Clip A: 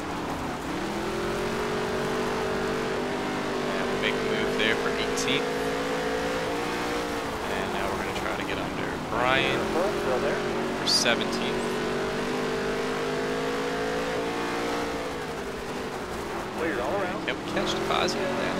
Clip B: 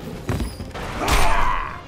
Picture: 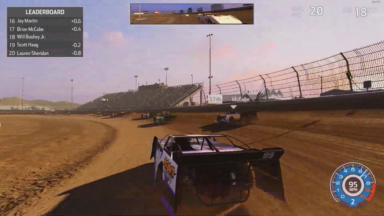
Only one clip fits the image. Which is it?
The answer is A